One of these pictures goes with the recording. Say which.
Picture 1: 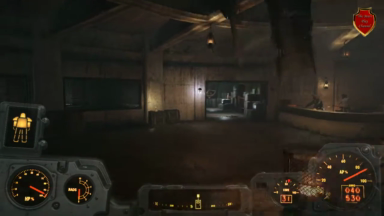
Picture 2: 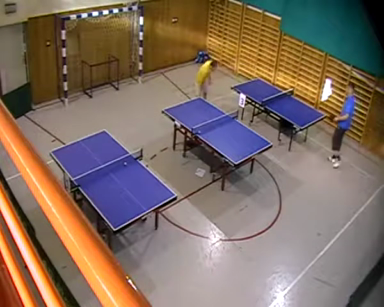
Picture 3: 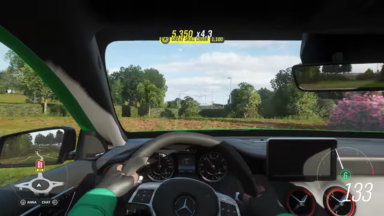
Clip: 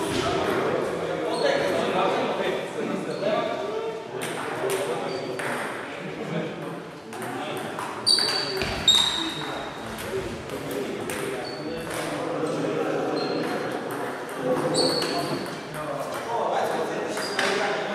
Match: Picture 2